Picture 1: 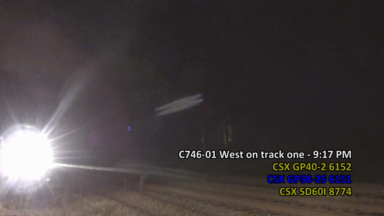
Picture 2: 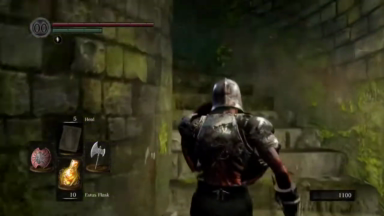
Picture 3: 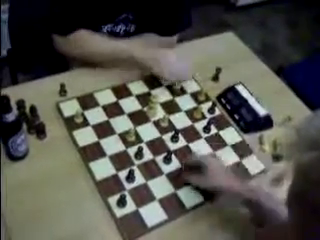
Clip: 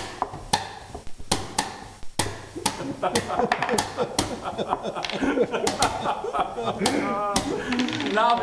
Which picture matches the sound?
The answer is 3